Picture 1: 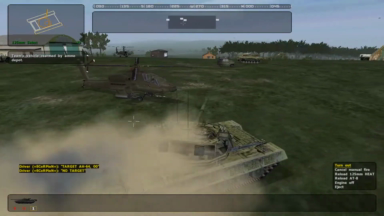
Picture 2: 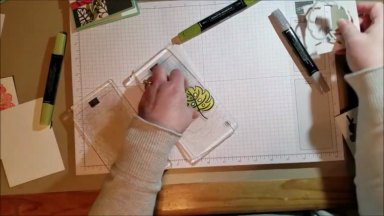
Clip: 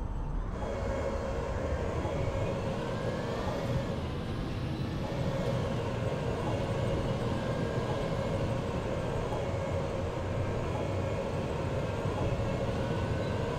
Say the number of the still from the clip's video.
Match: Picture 1